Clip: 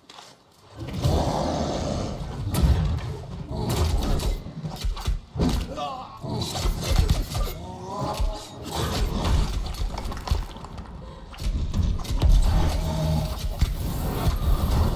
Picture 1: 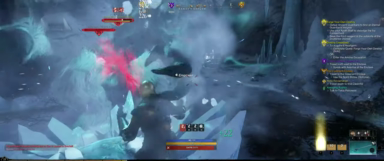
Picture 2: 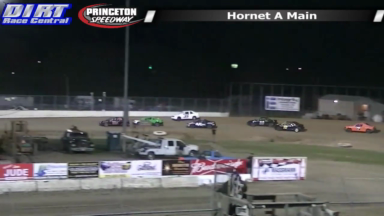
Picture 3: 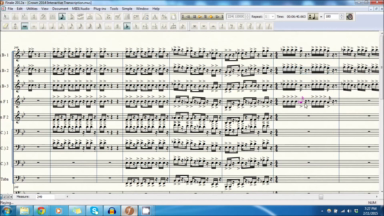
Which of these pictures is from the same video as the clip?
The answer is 1